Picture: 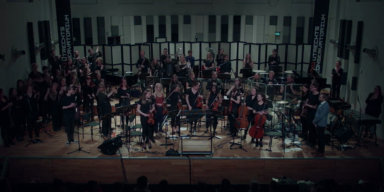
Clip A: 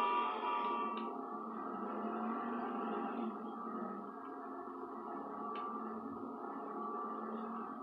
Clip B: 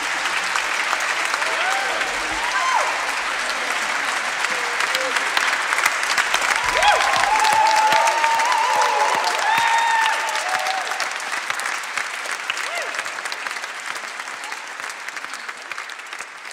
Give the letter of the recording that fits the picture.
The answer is B